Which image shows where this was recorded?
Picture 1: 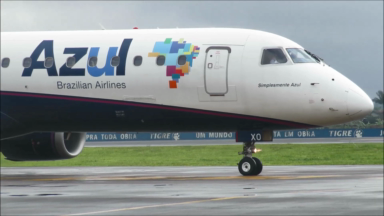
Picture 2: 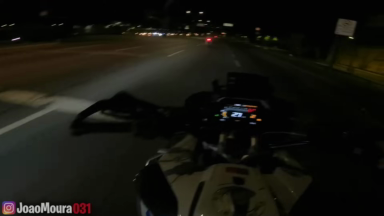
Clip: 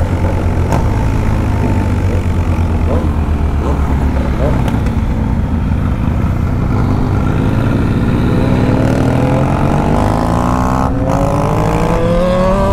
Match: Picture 2